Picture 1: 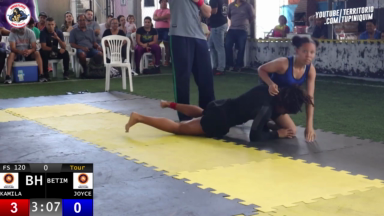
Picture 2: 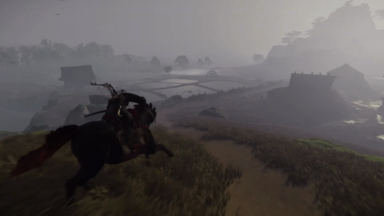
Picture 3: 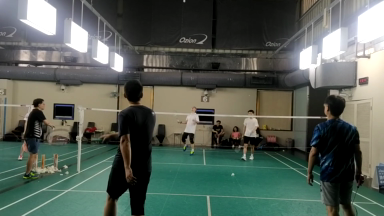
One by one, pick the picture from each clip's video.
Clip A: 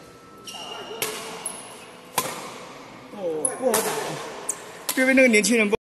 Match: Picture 3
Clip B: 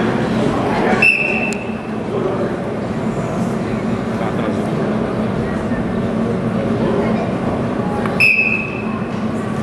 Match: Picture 1